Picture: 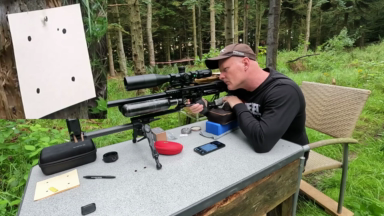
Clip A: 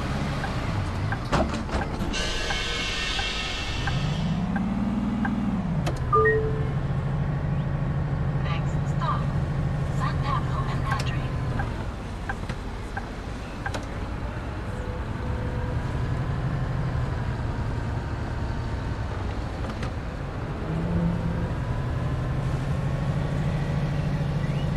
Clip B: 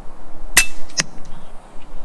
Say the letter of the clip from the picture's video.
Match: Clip B